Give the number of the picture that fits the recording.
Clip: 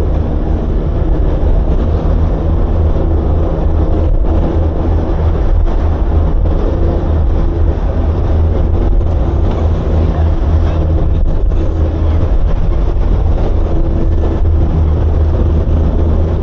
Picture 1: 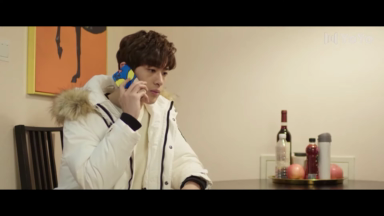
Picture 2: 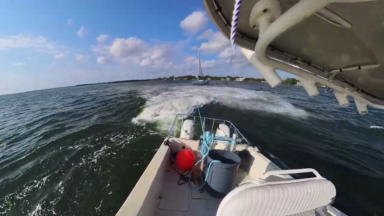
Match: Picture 2